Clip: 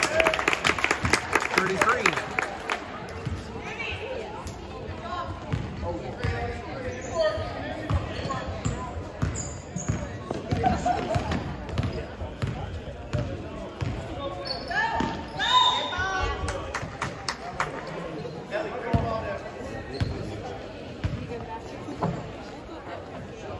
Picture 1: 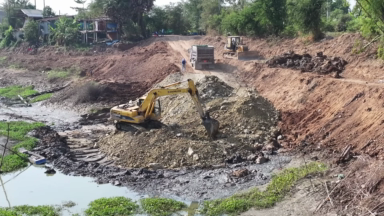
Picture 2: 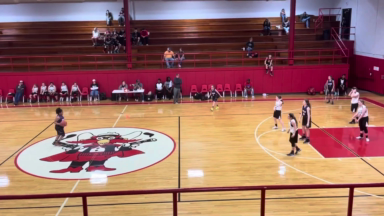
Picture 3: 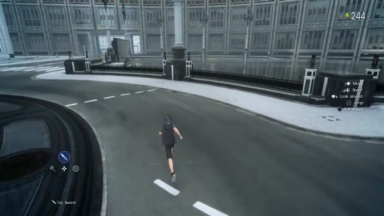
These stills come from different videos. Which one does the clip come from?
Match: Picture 2